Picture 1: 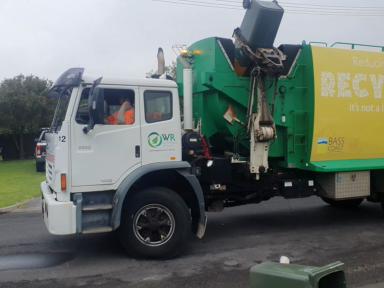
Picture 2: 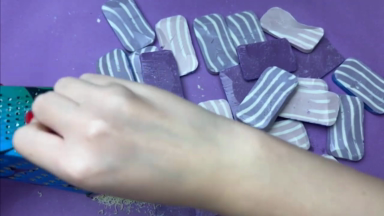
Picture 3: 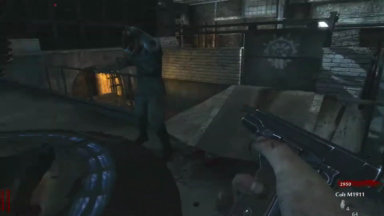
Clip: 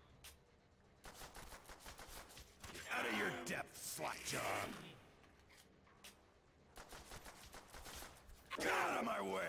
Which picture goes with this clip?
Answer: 3